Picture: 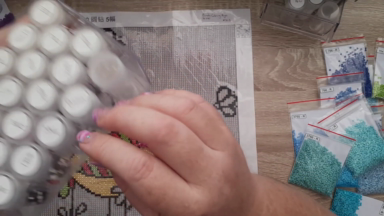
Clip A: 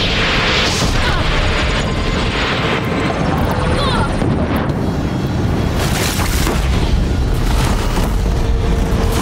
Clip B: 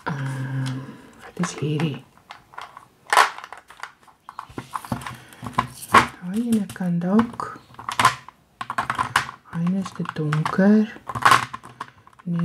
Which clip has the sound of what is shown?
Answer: B